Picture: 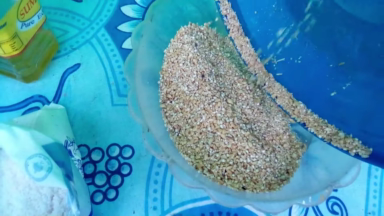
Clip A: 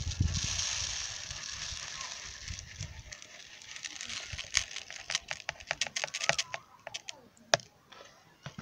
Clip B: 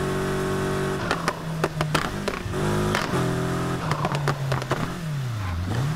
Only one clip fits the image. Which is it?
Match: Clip A